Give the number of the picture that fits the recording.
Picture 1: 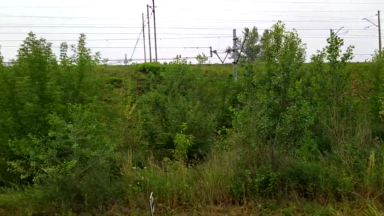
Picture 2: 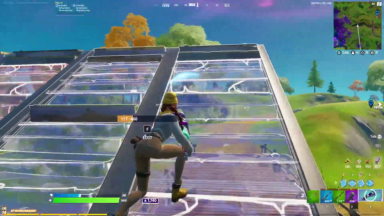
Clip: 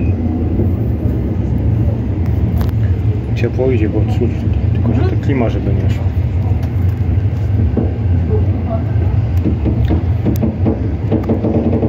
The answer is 1